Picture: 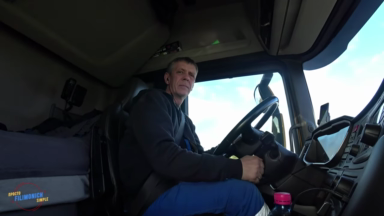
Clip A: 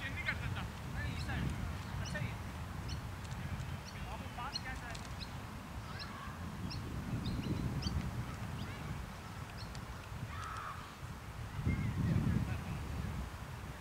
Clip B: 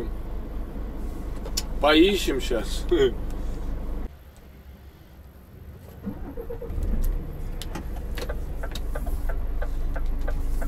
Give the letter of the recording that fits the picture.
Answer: B